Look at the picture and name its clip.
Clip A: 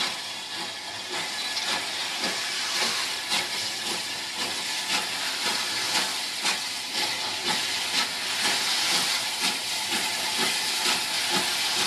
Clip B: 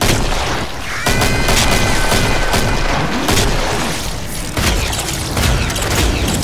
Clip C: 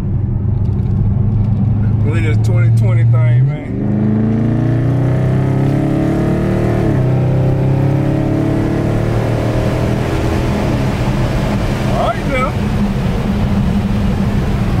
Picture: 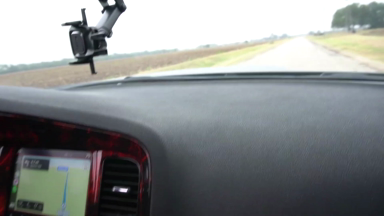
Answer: C